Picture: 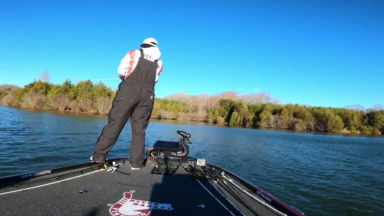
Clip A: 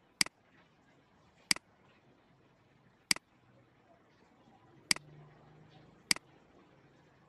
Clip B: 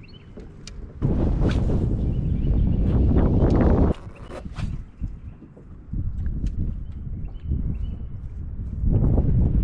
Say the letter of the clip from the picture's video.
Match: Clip B